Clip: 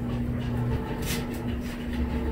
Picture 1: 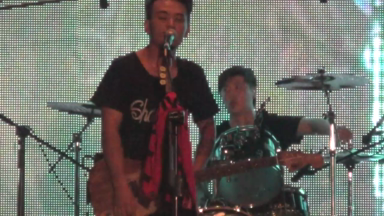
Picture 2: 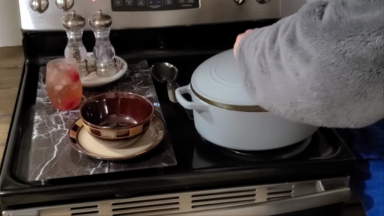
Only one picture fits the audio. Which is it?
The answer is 2